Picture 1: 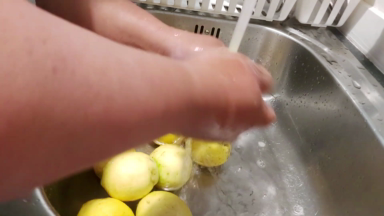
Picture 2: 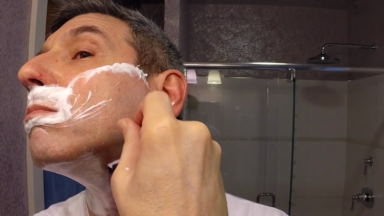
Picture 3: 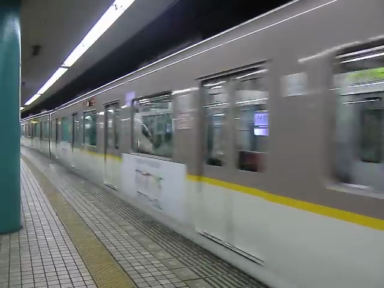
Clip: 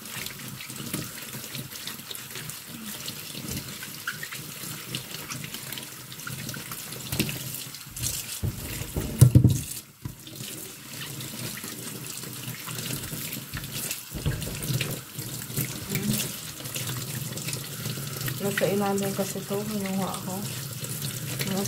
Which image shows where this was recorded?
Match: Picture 1